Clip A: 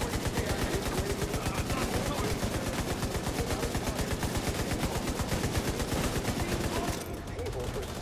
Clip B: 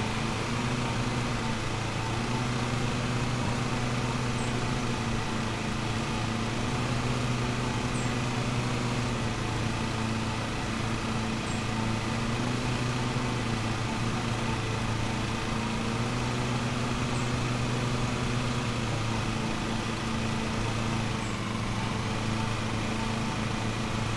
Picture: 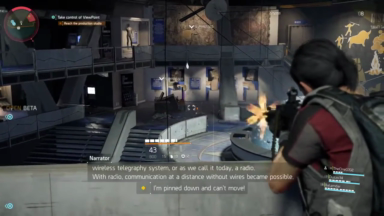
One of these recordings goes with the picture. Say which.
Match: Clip A